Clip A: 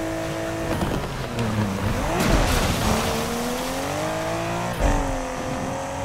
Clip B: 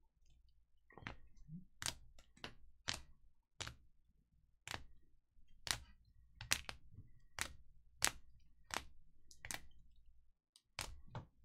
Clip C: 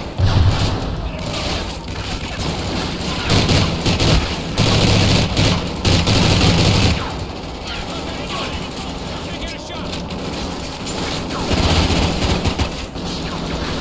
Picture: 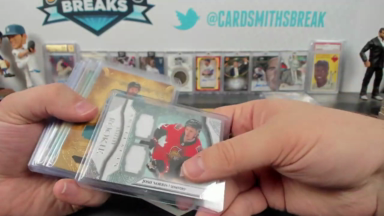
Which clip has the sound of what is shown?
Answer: B